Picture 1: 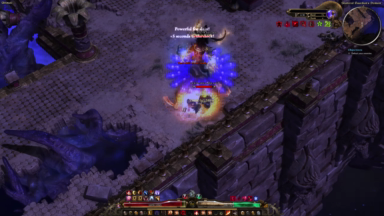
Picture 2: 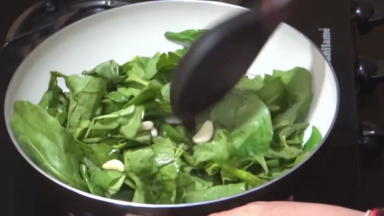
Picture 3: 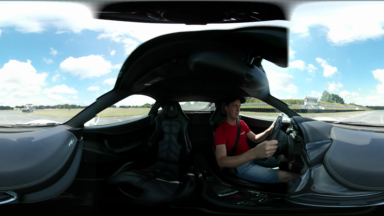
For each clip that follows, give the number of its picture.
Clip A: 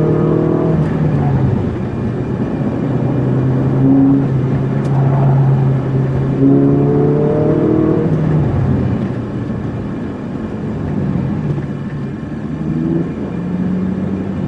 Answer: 3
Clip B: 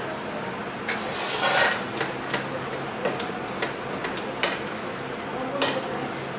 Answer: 2